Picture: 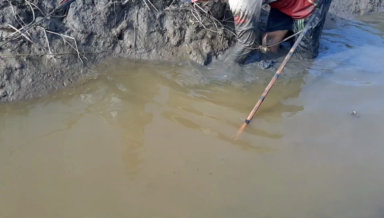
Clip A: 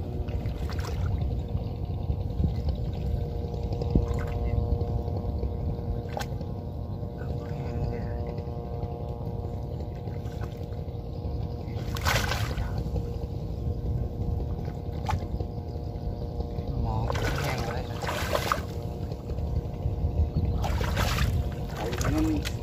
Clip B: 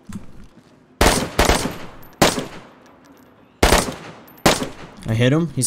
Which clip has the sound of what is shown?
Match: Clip A